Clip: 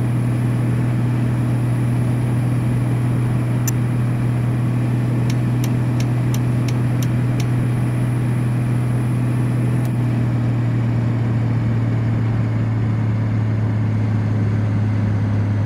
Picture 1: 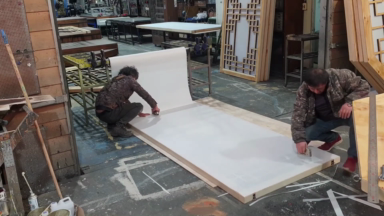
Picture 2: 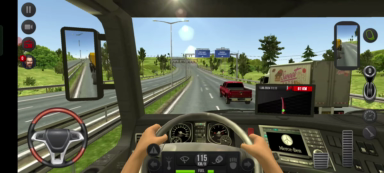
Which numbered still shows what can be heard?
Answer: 2